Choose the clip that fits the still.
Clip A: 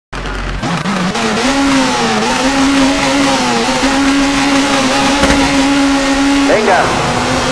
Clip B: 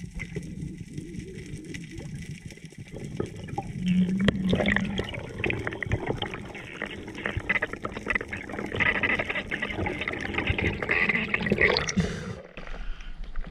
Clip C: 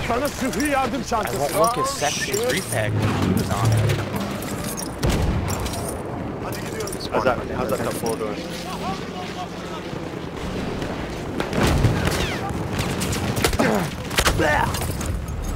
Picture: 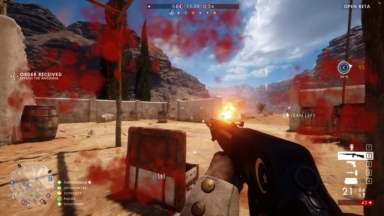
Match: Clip C